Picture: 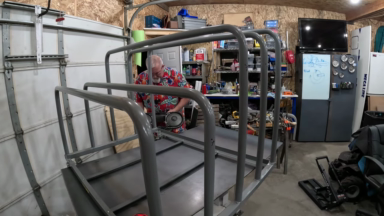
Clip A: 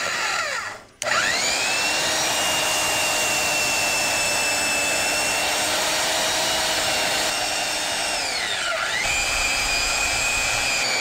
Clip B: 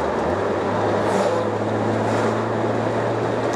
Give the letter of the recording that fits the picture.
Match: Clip A